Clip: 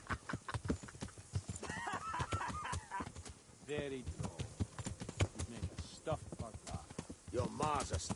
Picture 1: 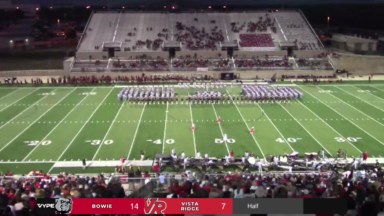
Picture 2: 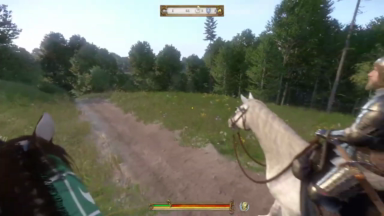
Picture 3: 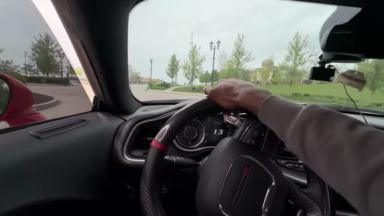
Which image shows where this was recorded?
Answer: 2